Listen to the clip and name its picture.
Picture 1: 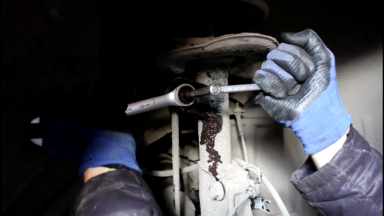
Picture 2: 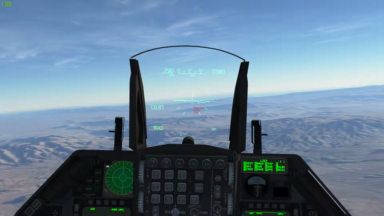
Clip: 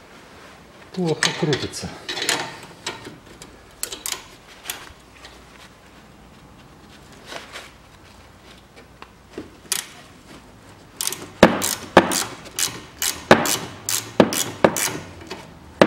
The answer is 1